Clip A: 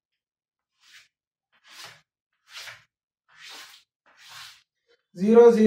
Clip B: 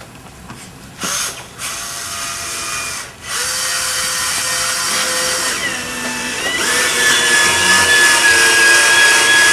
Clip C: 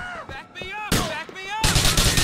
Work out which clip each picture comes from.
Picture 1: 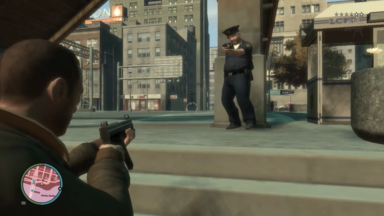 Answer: C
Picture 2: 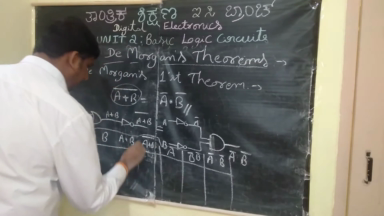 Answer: A